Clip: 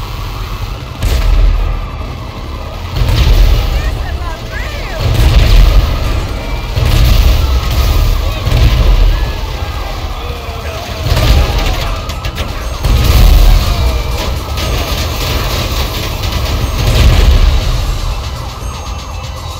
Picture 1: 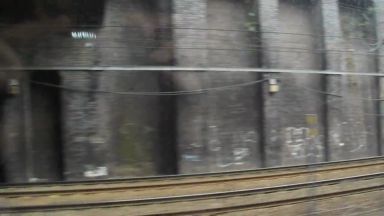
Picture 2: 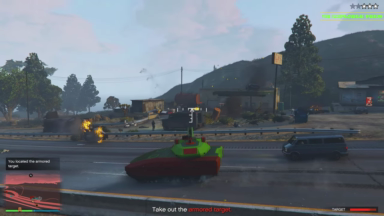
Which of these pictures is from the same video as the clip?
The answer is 2